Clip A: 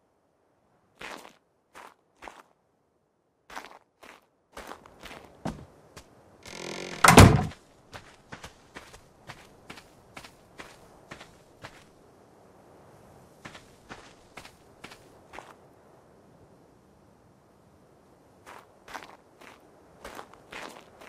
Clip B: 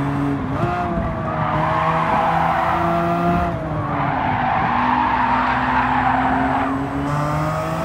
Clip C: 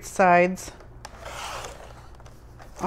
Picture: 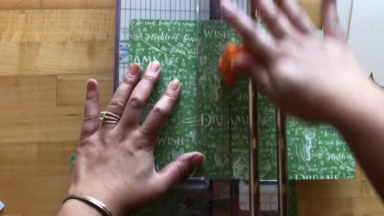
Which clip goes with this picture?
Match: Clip C